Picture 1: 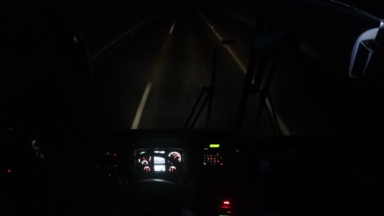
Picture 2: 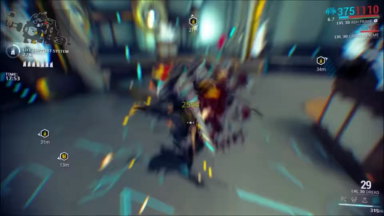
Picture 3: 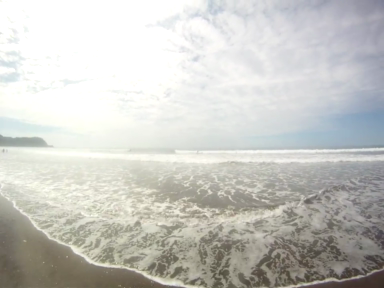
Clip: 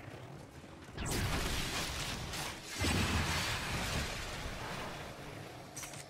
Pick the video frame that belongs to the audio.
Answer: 2